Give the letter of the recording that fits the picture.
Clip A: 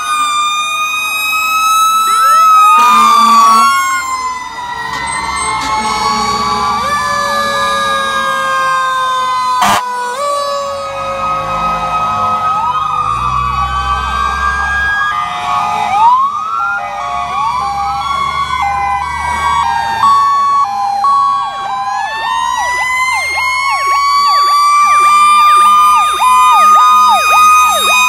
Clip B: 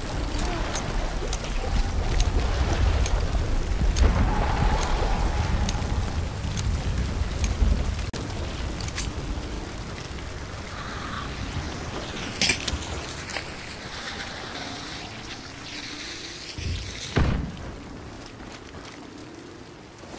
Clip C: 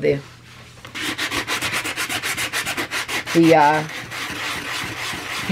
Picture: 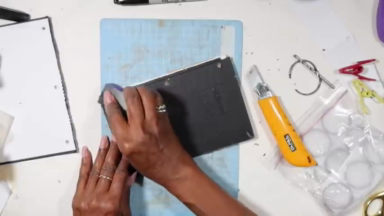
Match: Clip C